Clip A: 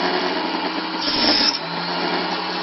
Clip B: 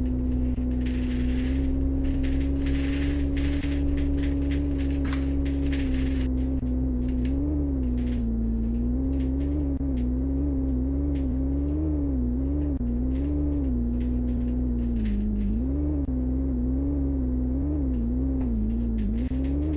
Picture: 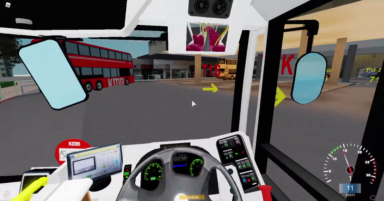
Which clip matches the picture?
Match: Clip B